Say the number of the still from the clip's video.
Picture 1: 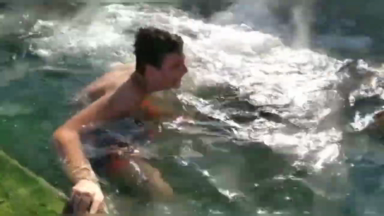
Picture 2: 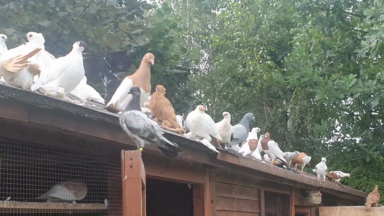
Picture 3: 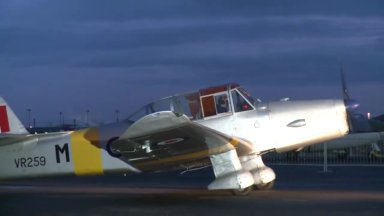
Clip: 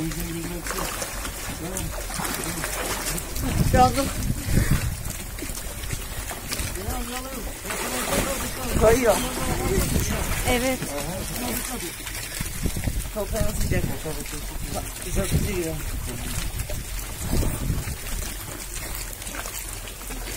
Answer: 1